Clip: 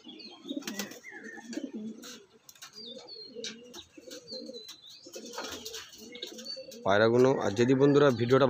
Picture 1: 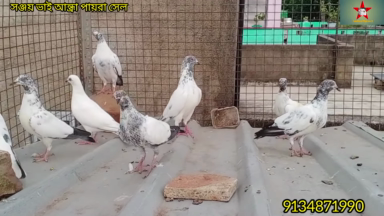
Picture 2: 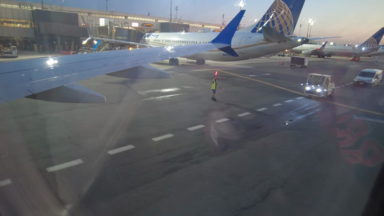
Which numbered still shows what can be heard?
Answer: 1